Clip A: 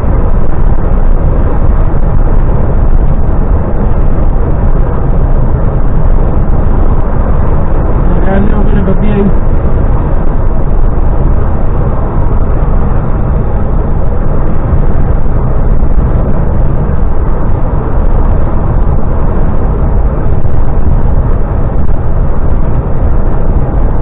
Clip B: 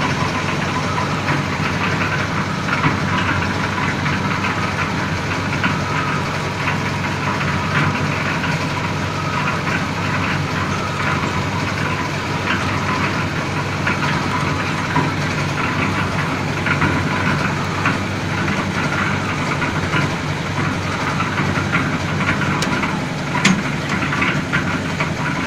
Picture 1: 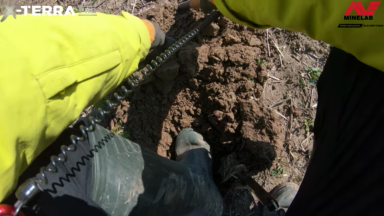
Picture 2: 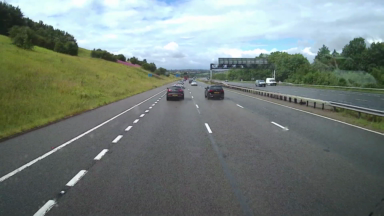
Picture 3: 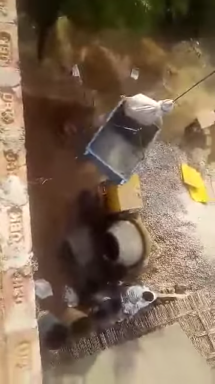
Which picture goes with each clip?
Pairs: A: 2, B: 3